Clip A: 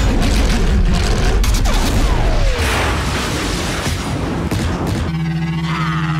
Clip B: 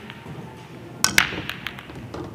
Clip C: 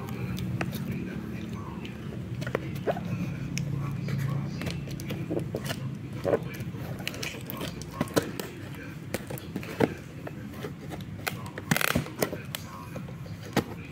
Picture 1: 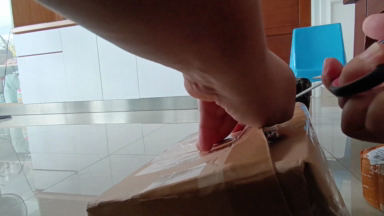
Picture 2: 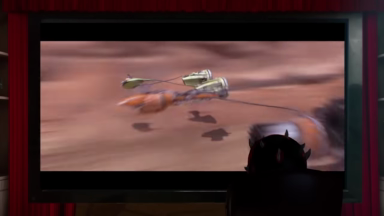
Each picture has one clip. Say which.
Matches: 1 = C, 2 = A